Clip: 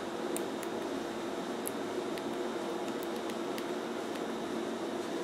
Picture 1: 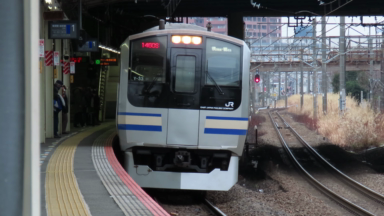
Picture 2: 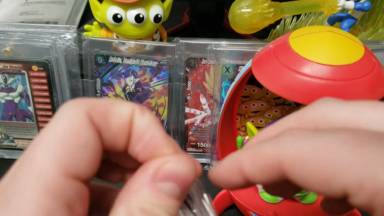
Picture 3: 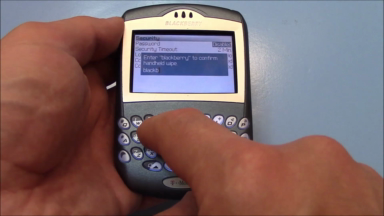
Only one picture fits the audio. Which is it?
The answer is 3